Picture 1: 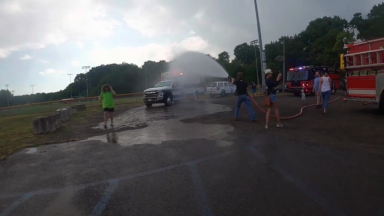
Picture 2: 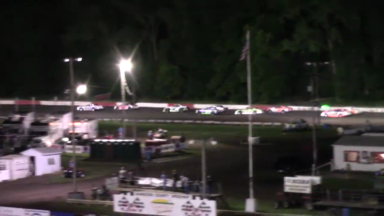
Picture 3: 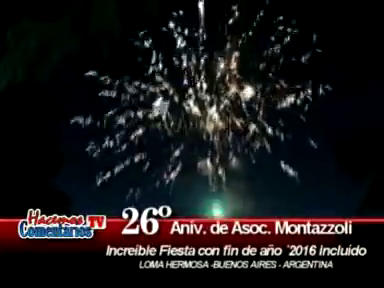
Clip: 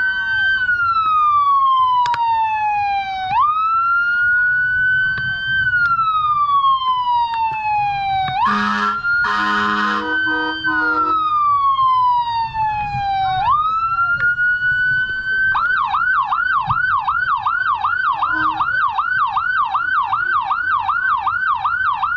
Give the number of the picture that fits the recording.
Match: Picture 1